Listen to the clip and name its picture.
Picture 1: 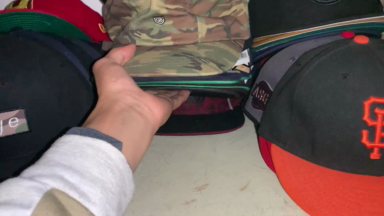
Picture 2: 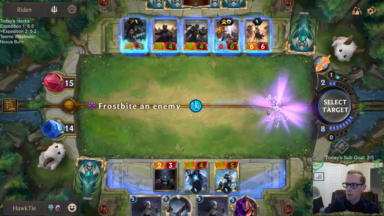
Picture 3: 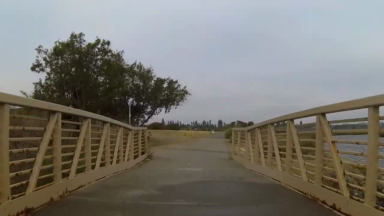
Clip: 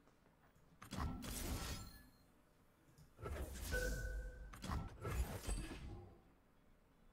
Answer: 2